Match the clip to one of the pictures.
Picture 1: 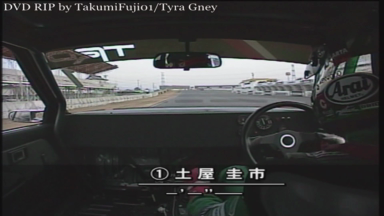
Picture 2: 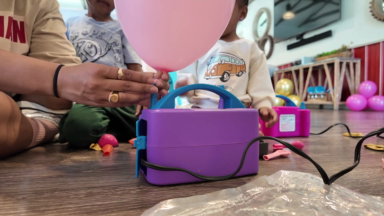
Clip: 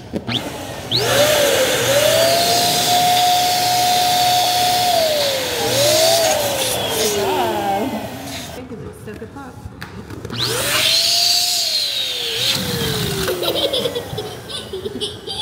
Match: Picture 2